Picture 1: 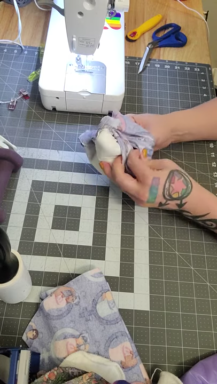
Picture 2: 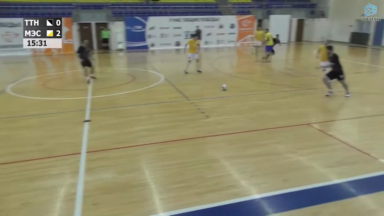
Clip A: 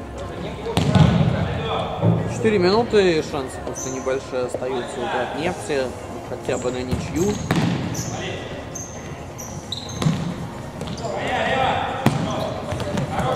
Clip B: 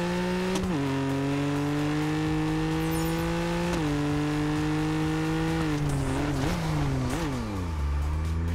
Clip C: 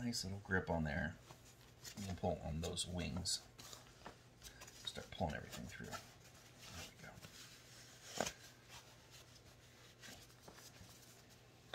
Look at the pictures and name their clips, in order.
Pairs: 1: C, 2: A